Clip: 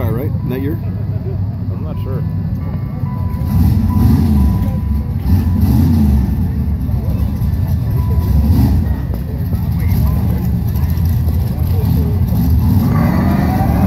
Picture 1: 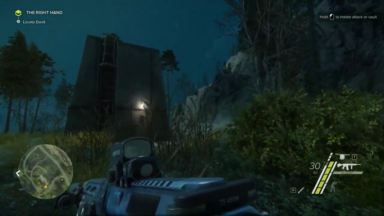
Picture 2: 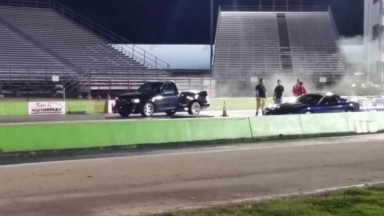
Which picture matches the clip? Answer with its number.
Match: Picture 2